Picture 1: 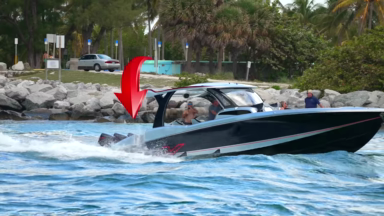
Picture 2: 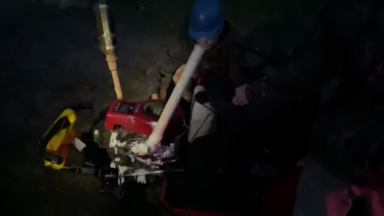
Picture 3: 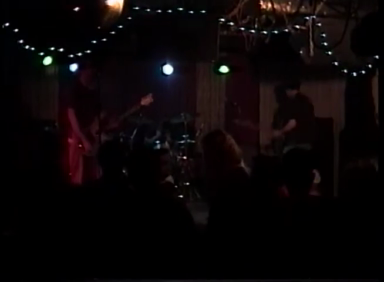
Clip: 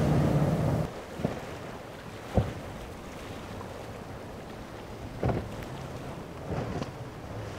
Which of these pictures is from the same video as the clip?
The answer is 1